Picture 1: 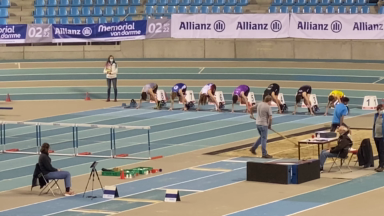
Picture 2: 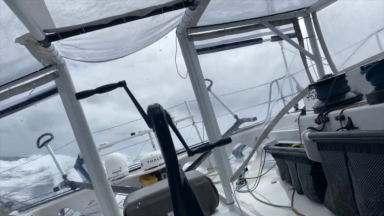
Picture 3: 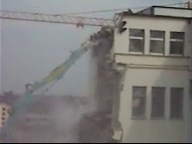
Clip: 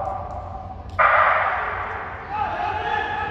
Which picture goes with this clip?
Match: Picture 1